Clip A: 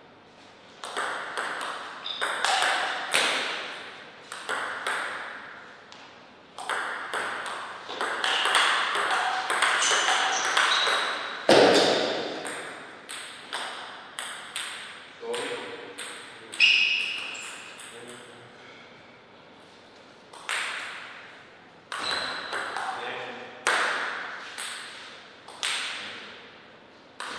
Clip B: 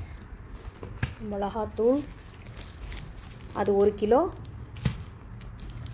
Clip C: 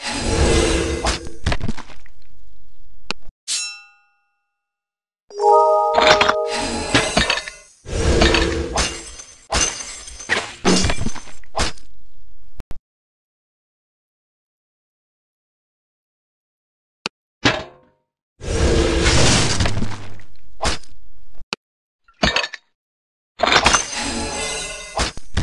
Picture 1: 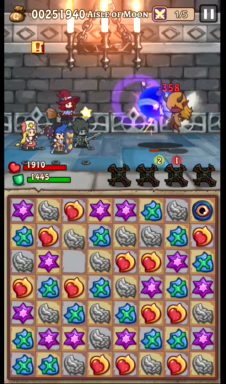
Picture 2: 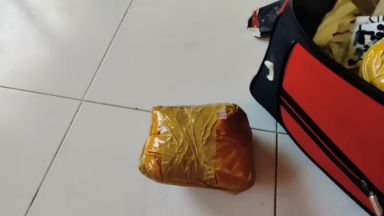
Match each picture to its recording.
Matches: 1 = C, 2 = B